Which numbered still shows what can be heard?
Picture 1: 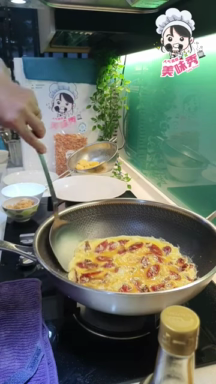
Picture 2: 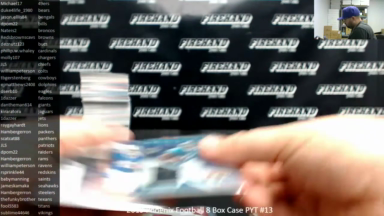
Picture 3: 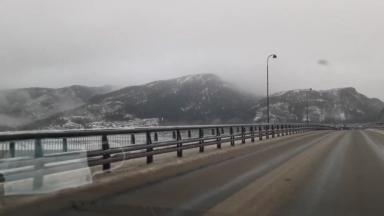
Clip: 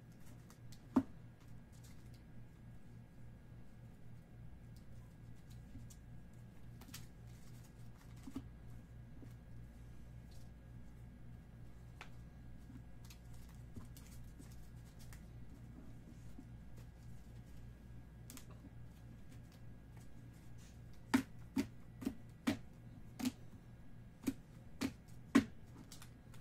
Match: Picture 2